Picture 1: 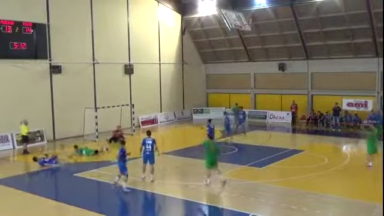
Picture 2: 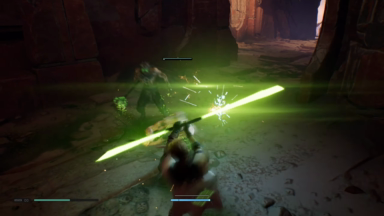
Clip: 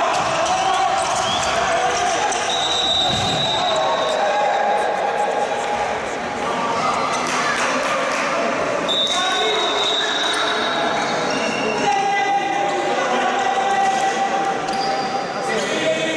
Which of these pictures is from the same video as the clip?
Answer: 1